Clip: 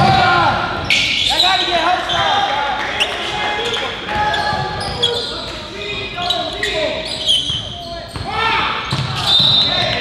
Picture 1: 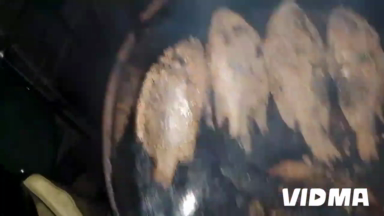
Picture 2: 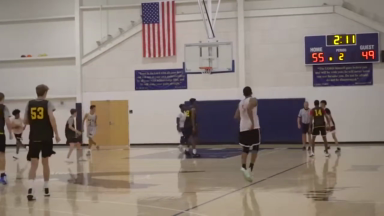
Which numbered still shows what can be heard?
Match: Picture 2